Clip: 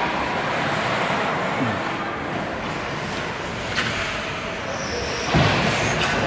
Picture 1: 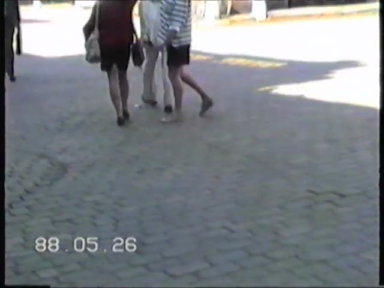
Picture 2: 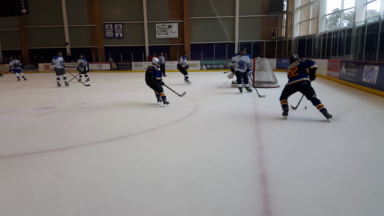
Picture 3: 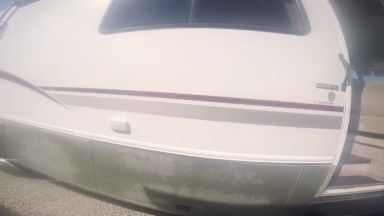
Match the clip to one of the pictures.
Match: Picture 2